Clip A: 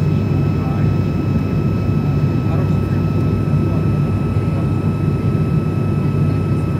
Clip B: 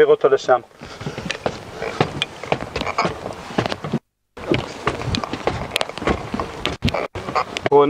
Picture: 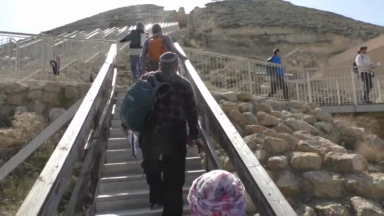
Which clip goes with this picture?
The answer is B